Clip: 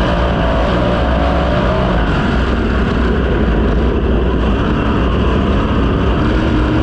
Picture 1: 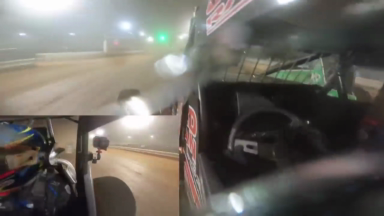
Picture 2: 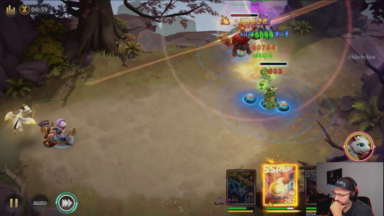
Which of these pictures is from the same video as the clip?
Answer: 1